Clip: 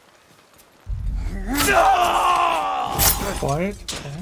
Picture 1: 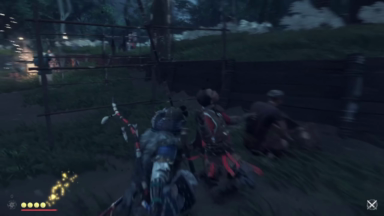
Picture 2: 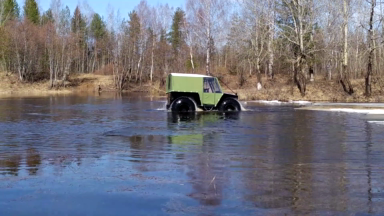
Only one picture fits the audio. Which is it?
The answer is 1